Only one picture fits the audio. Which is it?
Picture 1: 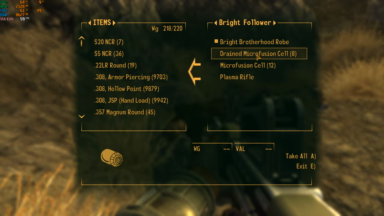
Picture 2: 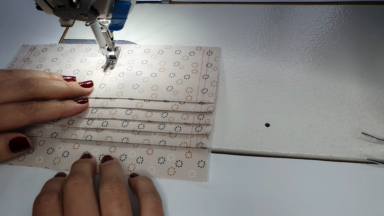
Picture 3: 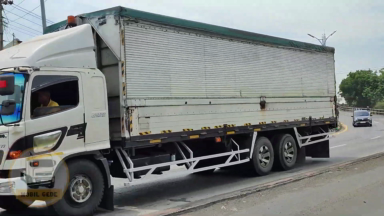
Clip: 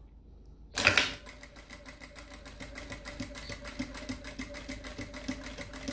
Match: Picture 2